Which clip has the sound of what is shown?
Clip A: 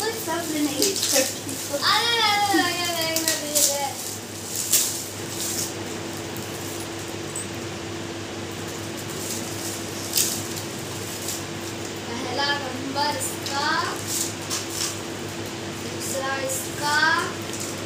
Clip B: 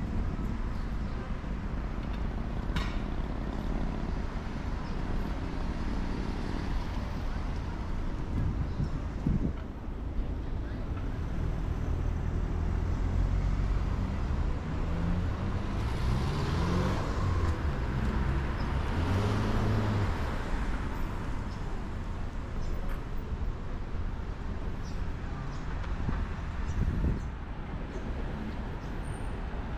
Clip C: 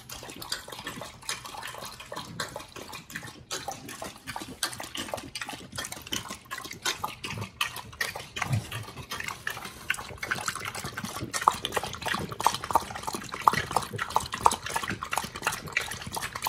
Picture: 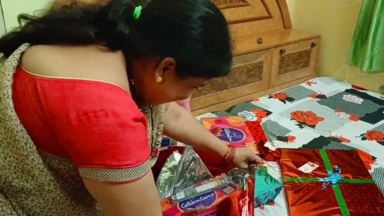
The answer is A